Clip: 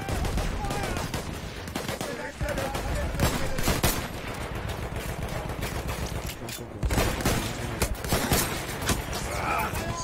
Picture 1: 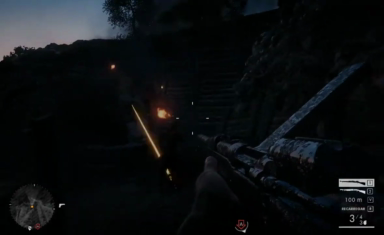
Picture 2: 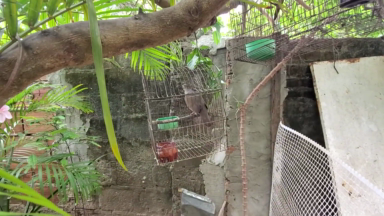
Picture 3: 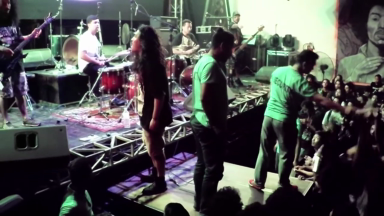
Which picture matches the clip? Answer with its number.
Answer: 1